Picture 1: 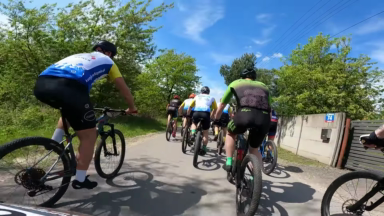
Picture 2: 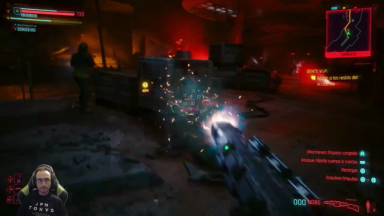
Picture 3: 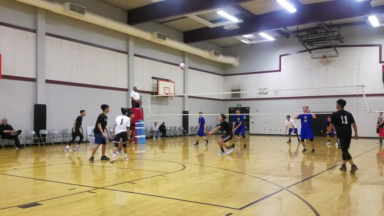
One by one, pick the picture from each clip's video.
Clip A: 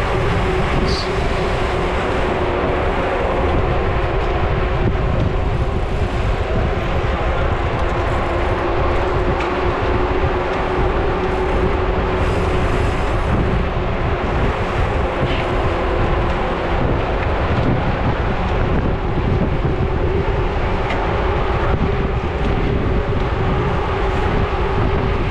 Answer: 1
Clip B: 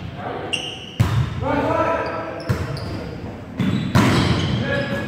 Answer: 3